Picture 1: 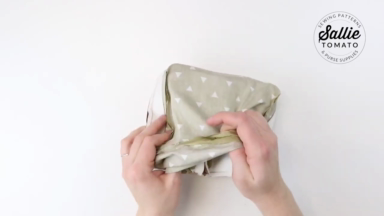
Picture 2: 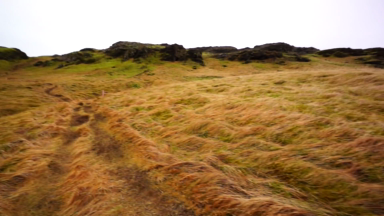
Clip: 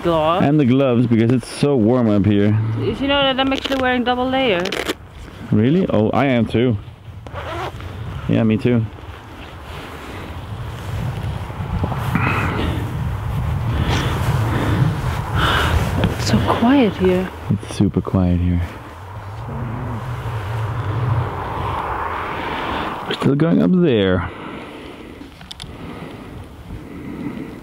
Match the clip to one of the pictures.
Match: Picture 2